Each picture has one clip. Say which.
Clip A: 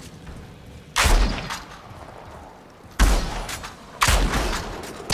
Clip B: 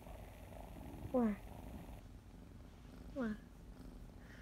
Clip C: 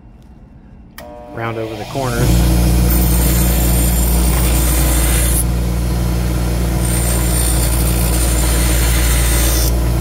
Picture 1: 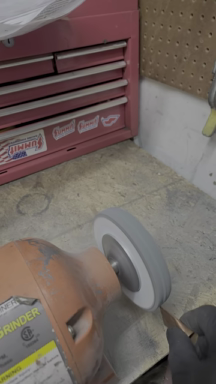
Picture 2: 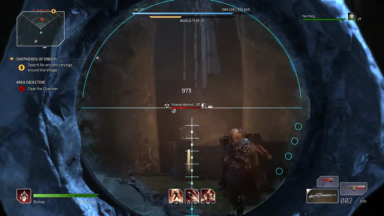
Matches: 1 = C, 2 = A